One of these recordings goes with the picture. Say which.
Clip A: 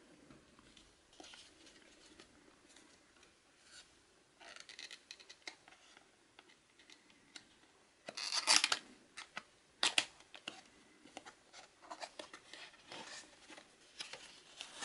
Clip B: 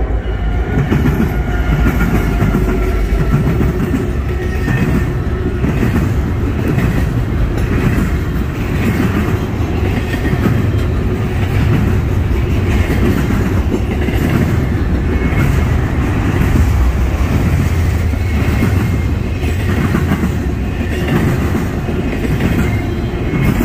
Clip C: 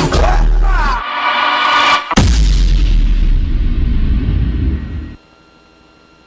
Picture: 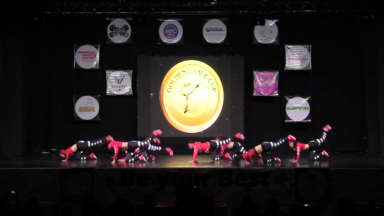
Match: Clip C